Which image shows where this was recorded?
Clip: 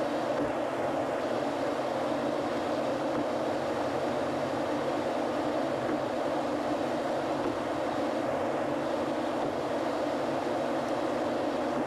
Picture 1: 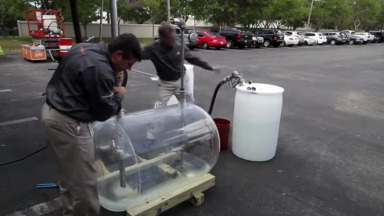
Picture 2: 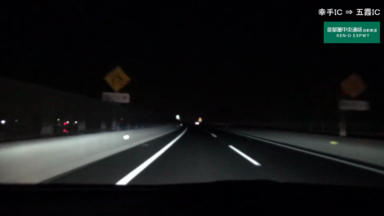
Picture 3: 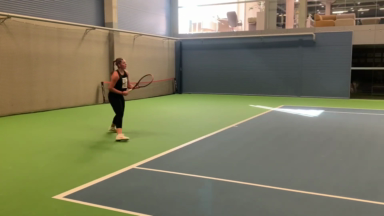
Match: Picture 2